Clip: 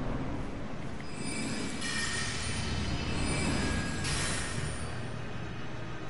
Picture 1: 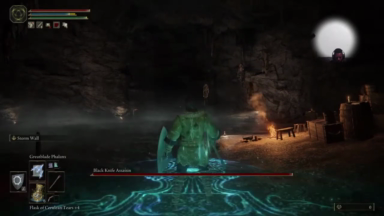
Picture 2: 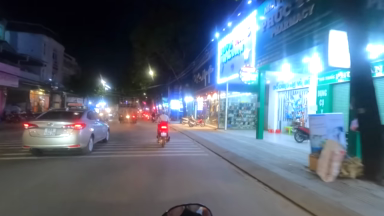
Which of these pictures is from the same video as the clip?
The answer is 1